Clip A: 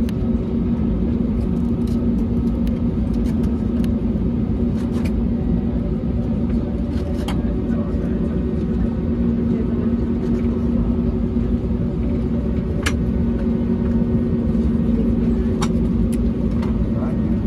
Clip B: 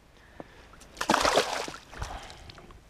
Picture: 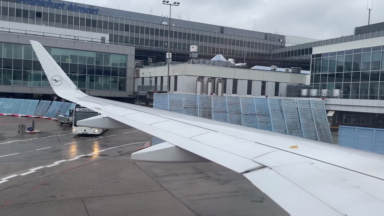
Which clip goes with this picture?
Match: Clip A